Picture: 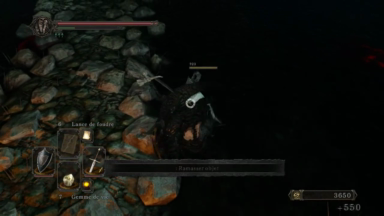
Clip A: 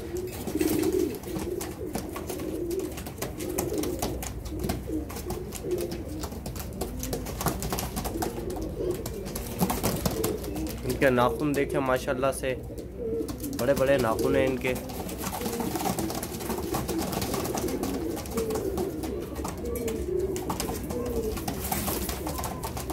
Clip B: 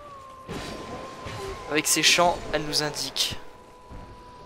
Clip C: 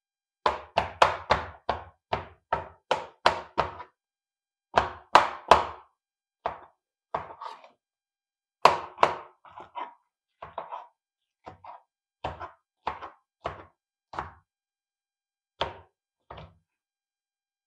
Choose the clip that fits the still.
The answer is B